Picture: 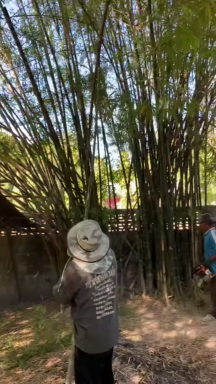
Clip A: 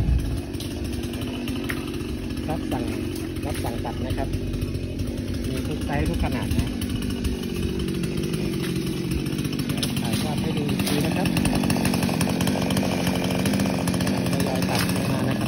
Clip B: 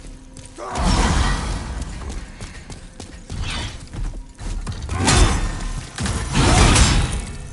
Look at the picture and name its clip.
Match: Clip A